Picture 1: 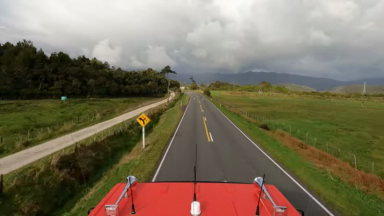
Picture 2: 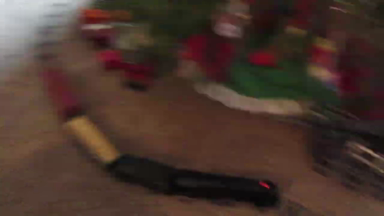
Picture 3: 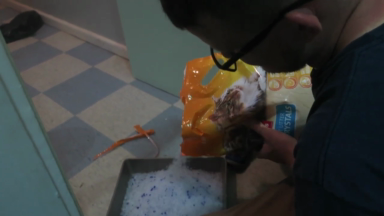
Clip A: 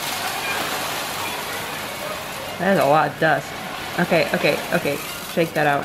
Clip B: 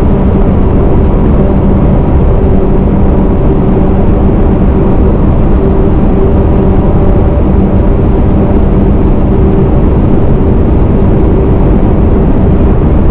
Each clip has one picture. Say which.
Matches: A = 3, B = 1